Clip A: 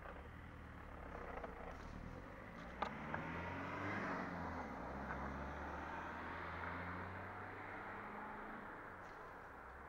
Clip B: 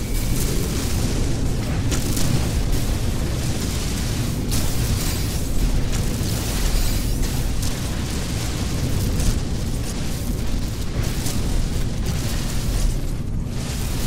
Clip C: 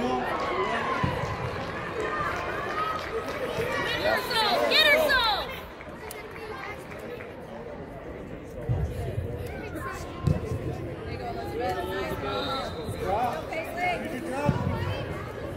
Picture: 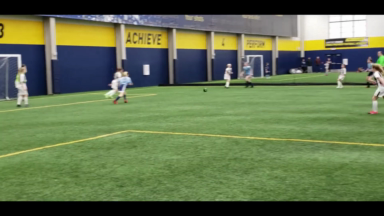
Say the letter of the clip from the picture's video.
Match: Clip C